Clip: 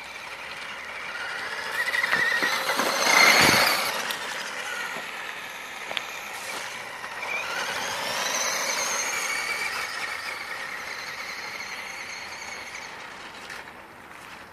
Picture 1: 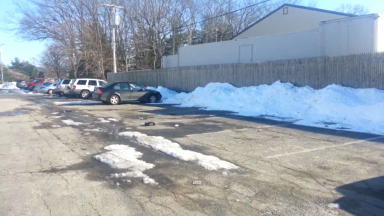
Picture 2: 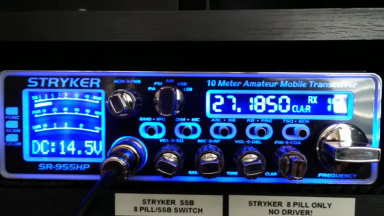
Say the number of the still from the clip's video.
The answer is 1